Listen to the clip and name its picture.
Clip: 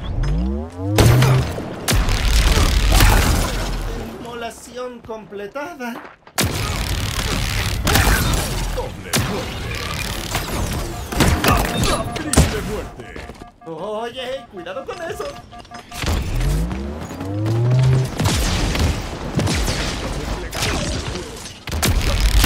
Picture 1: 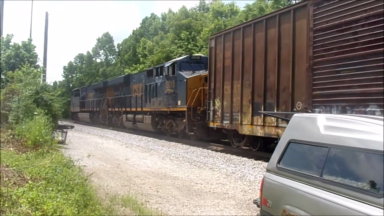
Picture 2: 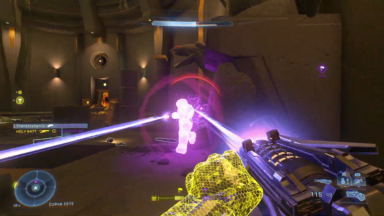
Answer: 2